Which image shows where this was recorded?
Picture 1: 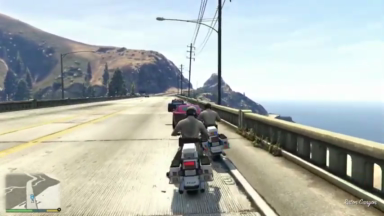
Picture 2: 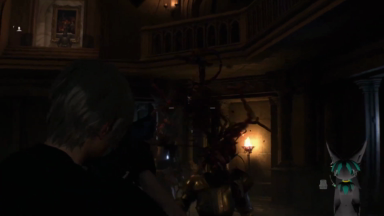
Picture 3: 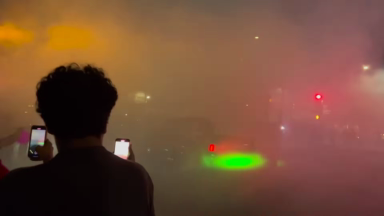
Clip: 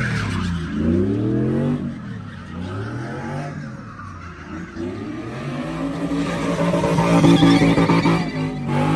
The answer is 3